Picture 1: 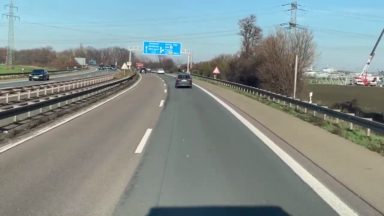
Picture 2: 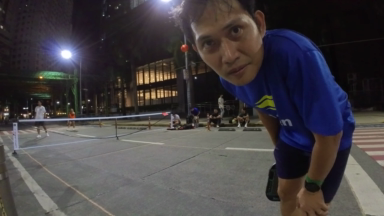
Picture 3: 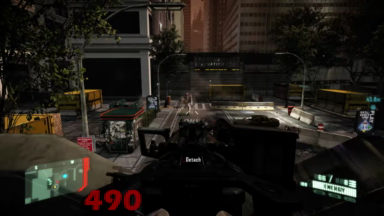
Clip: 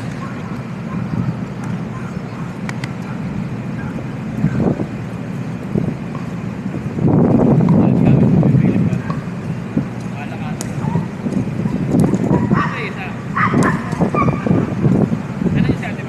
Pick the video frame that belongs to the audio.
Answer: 2